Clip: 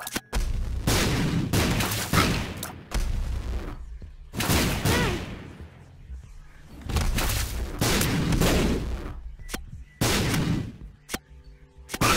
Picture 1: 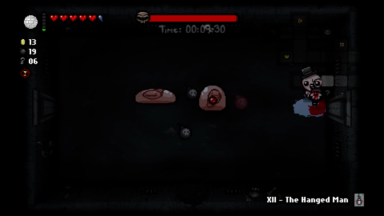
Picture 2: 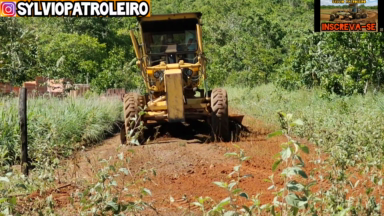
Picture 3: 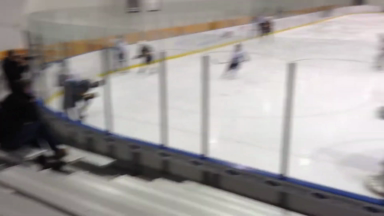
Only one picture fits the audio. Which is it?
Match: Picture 1